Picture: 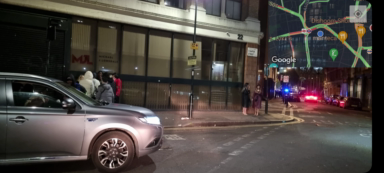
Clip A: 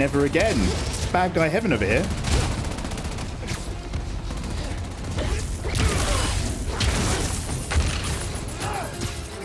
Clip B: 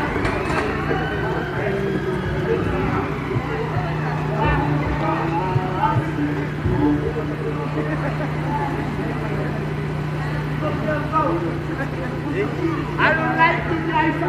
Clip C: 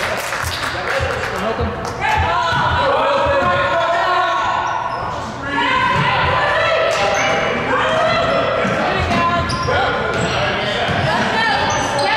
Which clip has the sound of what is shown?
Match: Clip B